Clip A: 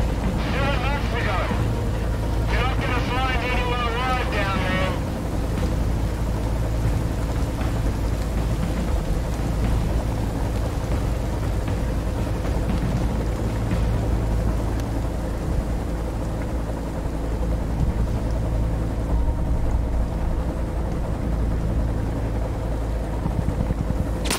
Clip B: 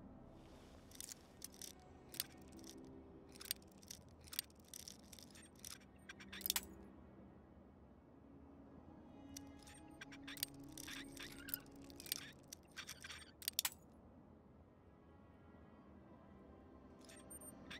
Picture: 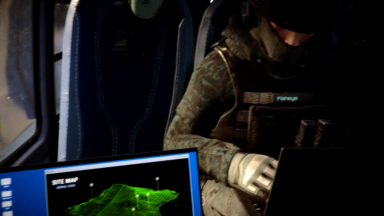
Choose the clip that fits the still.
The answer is A